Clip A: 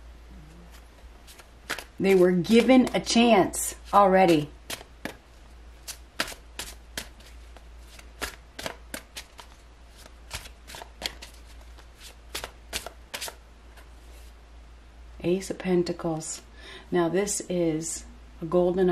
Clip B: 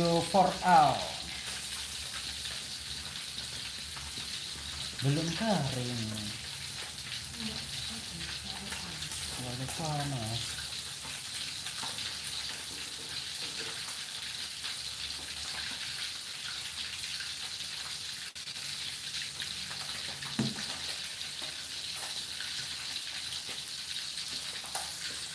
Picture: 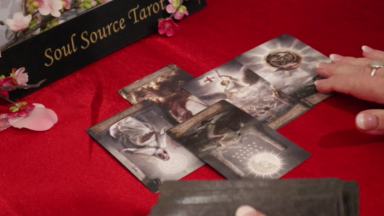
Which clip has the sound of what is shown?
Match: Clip A